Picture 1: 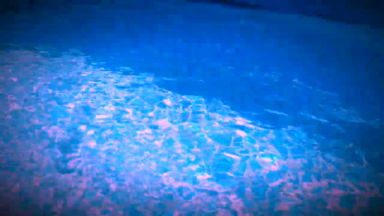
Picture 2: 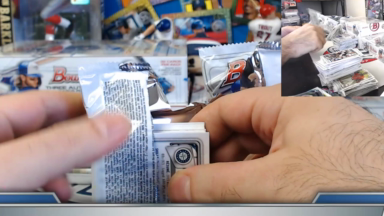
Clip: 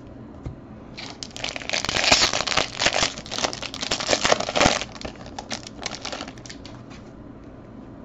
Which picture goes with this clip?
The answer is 2